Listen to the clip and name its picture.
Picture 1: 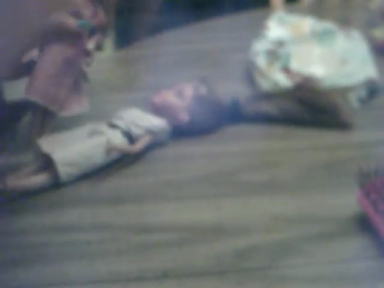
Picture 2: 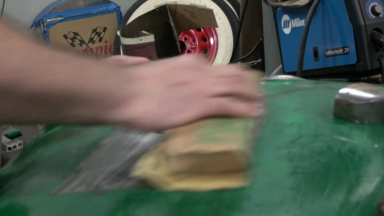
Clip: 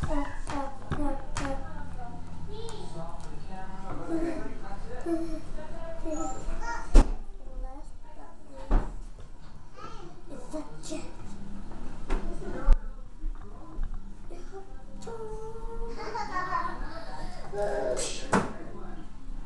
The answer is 1